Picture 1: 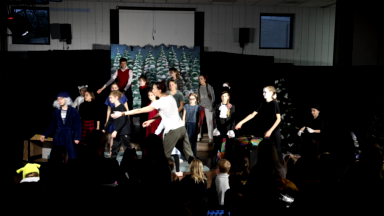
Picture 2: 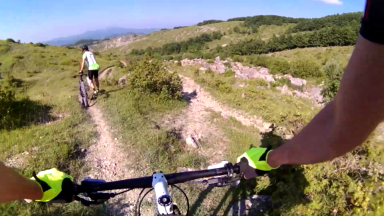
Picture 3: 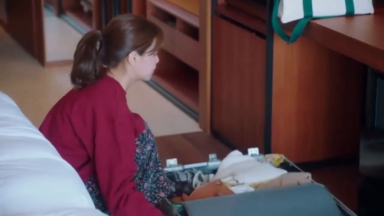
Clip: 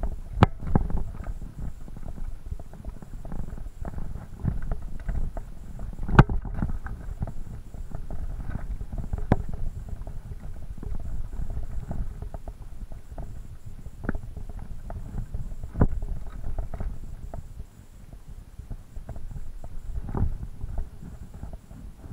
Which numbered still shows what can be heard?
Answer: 2